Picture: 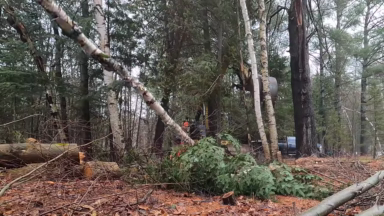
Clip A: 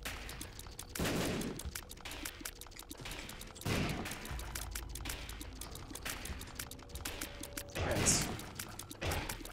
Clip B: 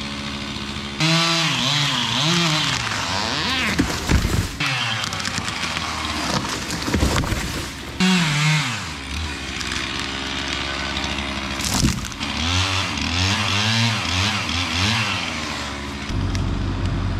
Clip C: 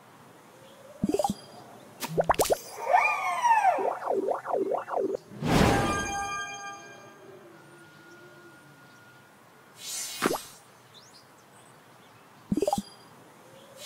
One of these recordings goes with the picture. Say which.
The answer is B